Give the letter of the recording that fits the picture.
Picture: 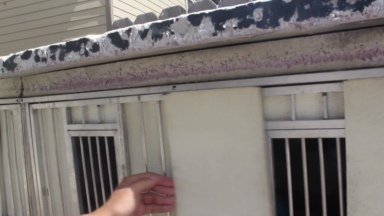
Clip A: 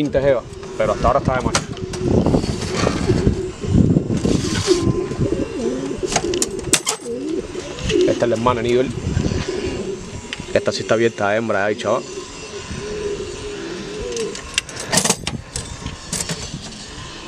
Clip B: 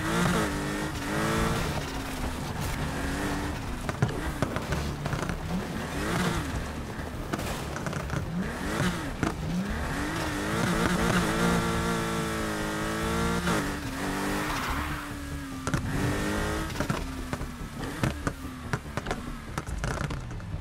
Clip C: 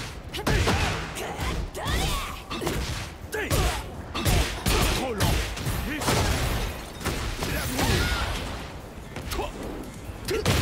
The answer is A